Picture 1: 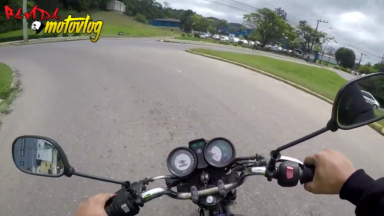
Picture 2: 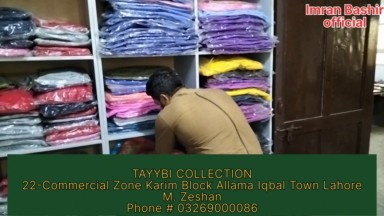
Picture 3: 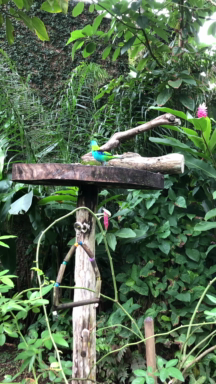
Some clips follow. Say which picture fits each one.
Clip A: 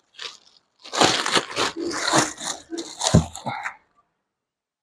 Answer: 2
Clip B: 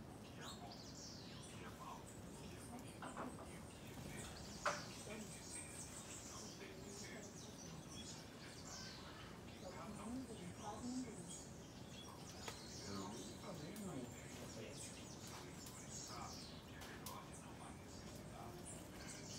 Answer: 3